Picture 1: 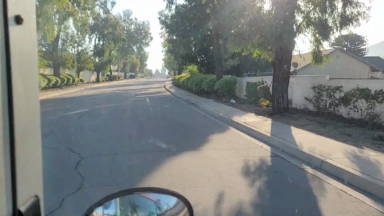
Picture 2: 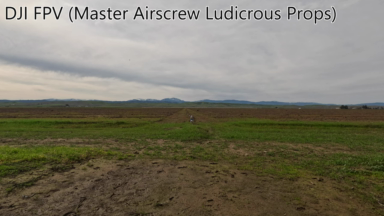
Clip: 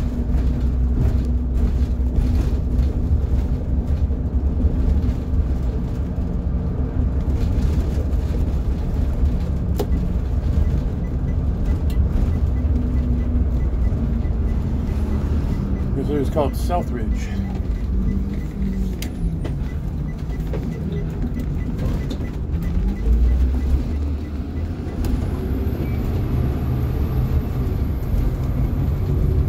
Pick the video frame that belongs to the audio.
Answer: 1